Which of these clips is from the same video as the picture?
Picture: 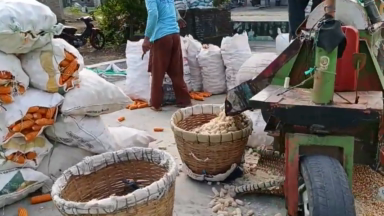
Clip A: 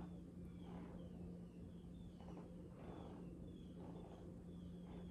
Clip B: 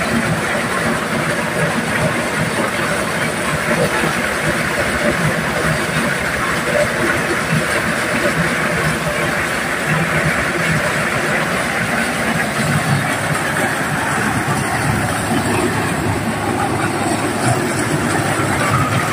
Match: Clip B